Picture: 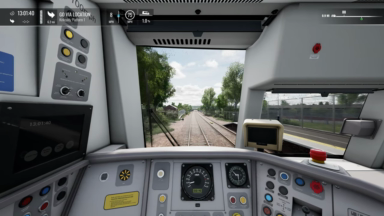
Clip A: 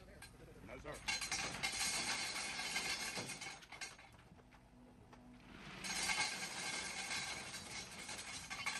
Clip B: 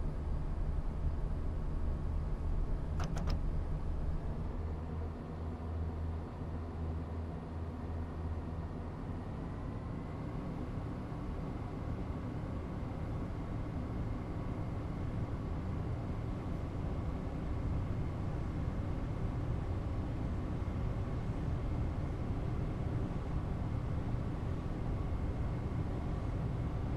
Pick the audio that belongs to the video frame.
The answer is B